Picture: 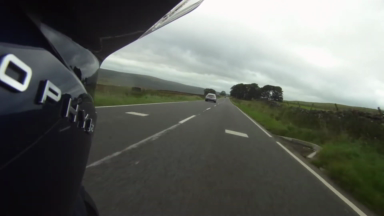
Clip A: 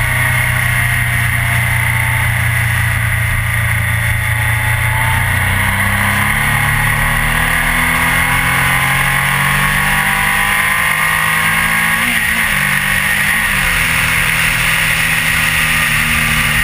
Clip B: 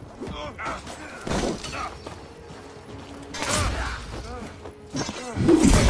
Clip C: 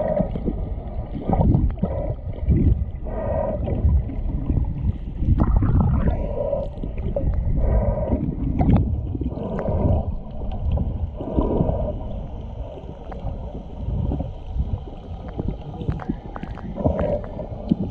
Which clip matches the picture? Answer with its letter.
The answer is A